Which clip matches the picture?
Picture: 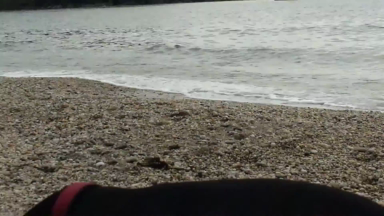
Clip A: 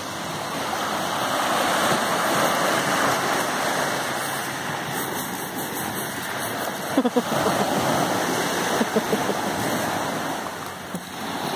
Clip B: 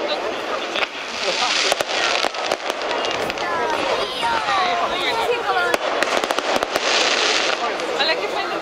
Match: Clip A